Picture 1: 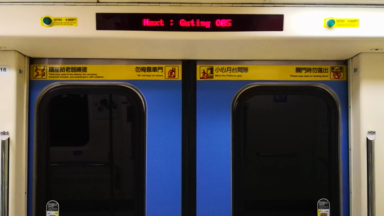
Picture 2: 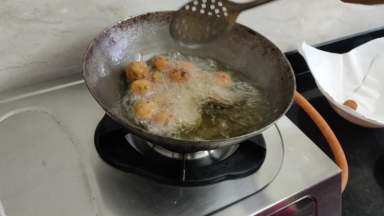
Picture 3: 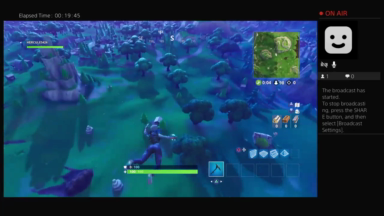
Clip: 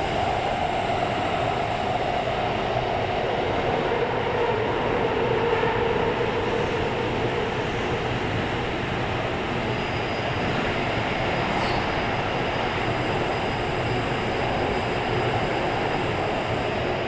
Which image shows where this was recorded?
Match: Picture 1